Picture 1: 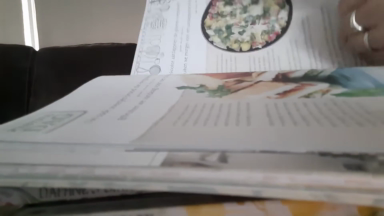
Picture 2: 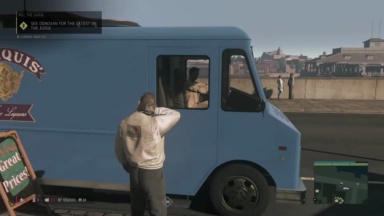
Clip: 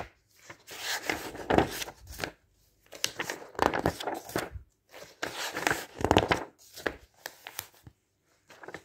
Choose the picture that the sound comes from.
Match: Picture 1